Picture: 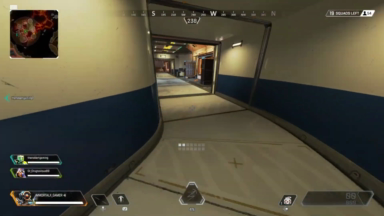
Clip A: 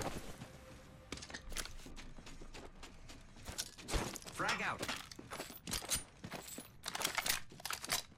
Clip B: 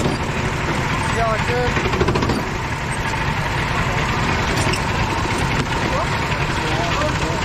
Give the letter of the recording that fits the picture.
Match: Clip A